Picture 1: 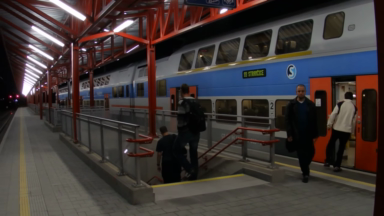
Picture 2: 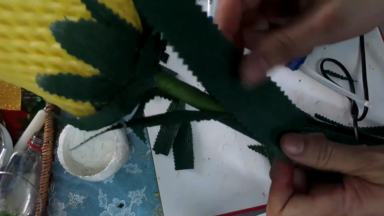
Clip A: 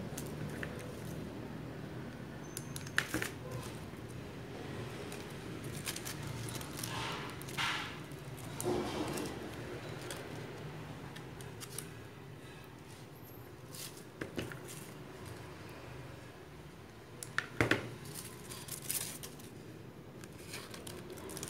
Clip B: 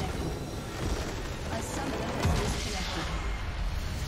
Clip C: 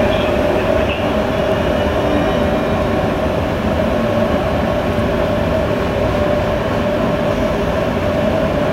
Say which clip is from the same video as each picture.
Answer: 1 C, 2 A